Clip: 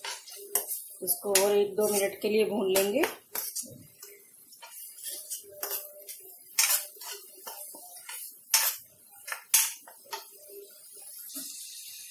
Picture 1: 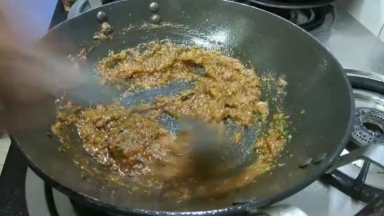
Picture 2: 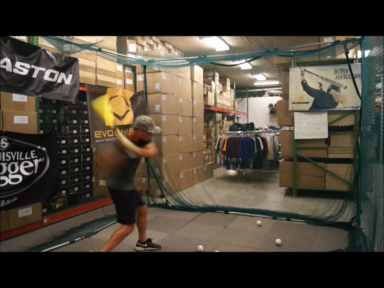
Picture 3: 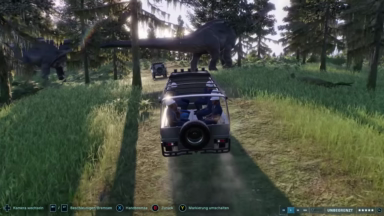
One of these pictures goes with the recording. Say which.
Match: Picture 1